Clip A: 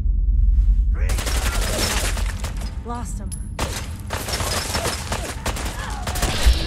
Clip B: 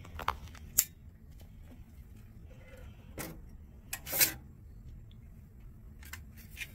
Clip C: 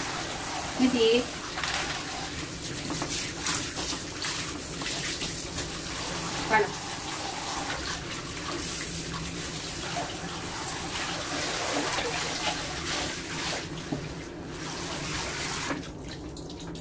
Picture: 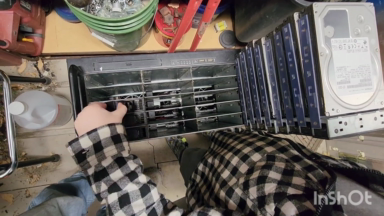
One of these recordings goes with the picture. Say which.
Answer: B